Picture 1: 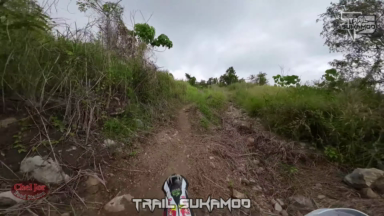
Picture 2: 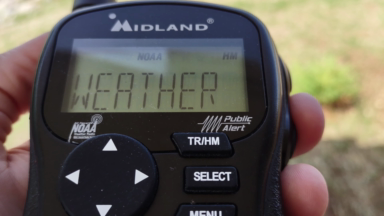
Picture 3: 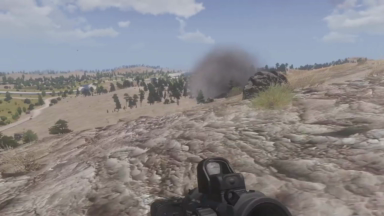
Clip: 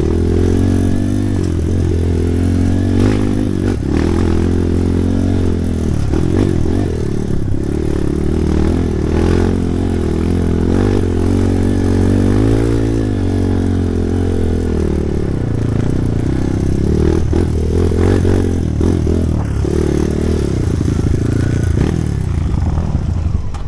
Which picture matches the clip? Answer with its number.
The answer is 1